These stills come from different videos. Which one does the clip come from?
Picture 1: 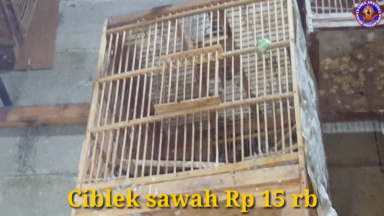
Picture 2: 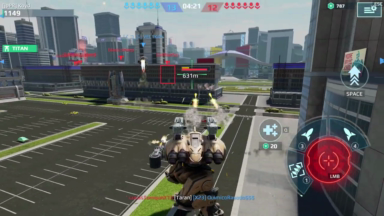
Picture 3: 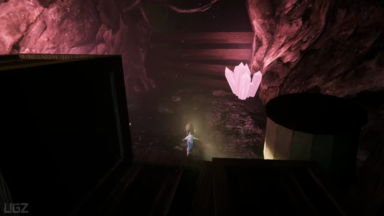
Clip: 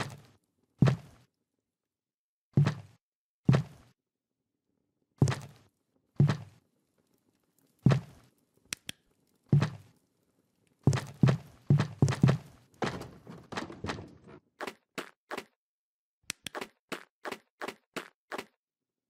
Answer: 3